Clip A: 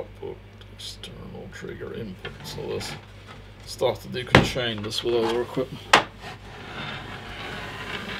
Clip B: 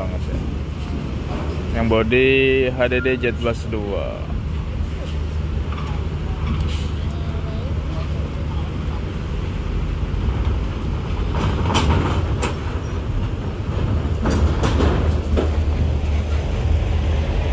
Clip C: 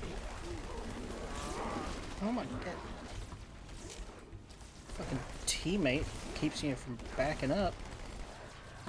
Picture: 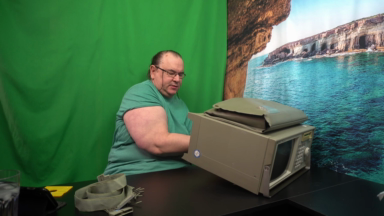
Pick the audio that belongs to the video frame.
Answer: A